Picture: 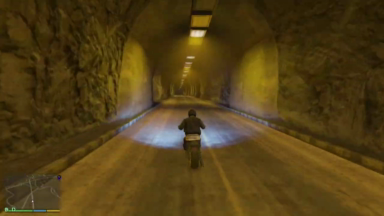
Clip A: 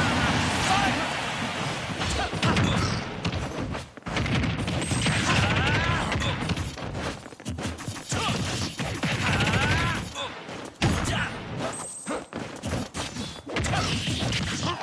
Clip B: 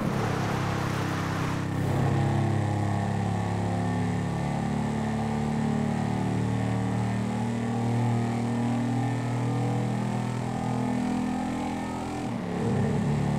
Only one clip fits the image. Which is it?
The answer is B